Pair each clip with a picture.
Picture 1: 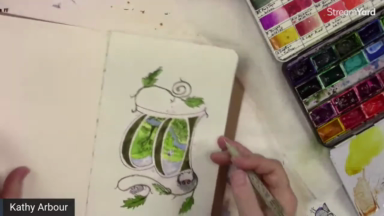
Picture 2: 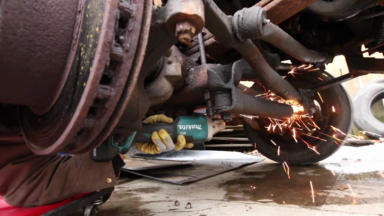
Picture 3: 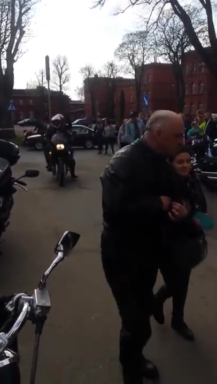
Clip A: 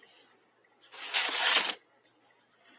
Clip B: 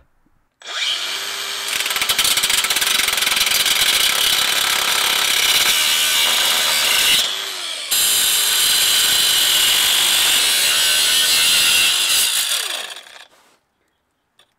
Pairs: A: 1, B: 2